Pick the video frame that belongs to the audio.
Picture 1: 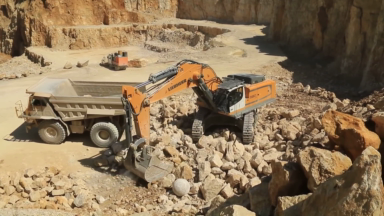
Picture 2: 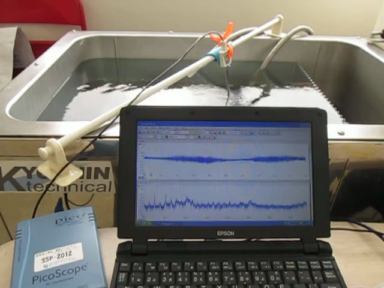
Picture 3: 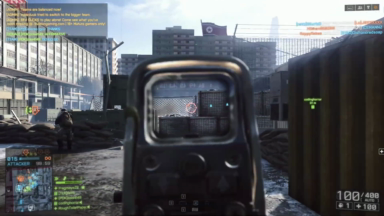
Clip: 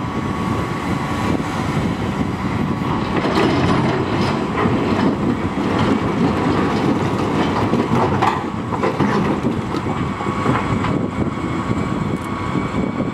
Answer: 1